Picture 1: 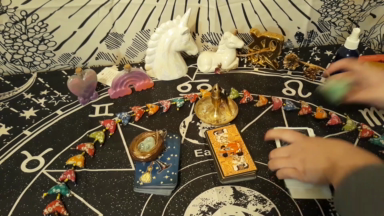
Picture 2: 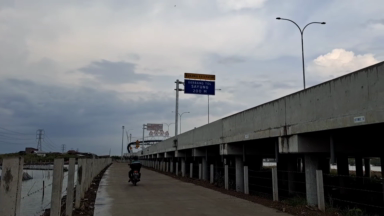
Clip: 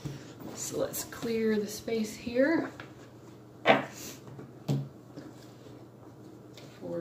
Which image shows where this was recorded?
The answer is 1